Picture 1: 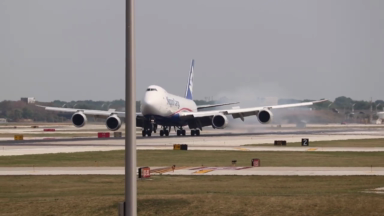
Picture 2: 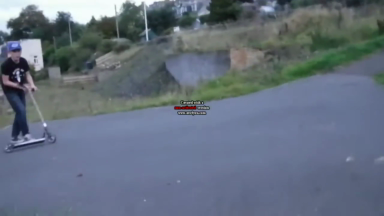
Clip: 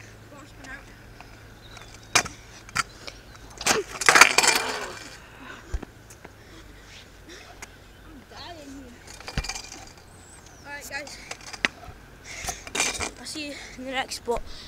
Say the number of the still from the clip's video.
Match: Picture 2